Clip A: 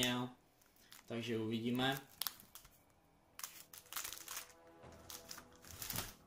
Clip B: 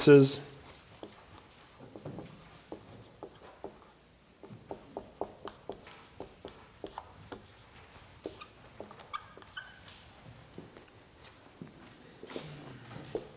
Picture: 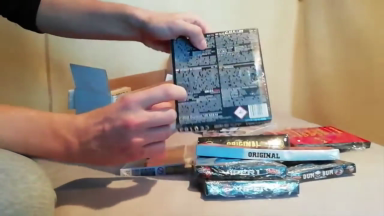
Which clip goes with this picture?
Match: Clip A